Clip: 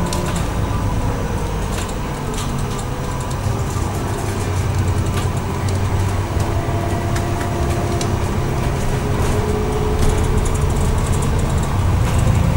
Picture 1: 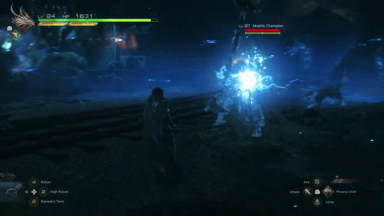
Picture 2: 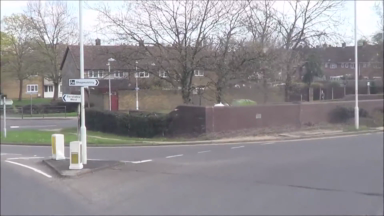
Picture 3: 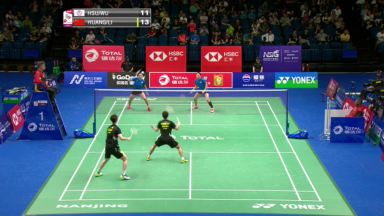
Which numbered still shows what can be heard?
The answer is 2